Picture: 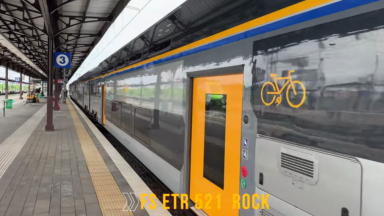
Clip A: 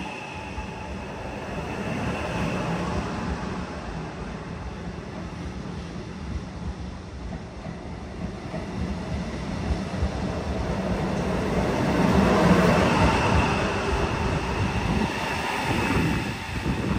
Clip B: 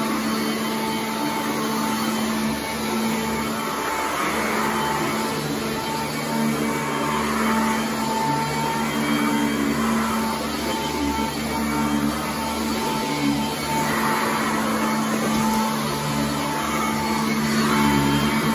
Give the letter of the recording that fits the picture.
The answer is A